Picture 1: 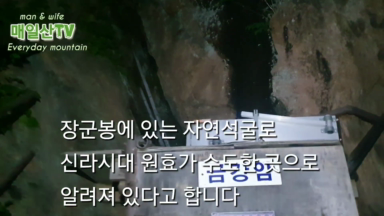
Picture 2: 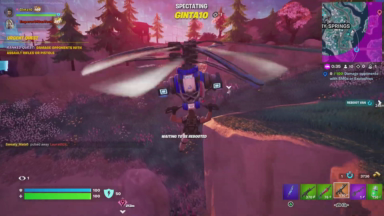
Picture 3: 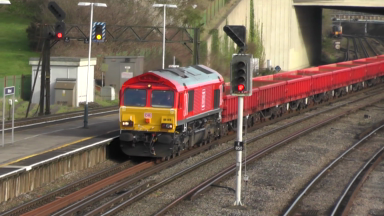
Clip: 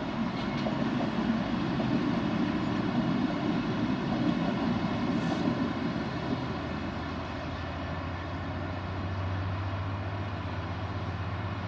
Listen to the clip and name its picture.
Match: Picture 3